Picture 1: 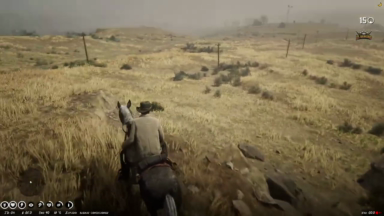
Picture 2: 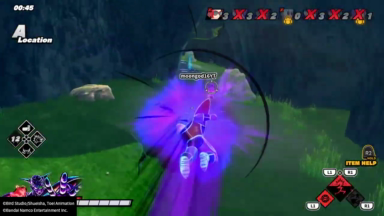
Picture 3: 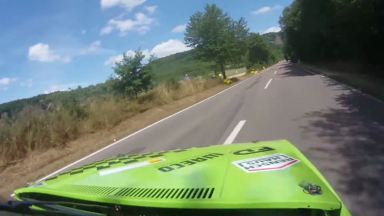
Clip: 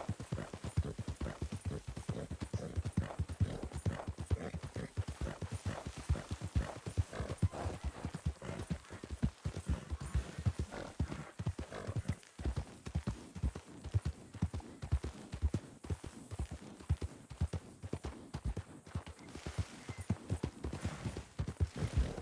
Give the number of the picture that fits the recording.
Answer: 1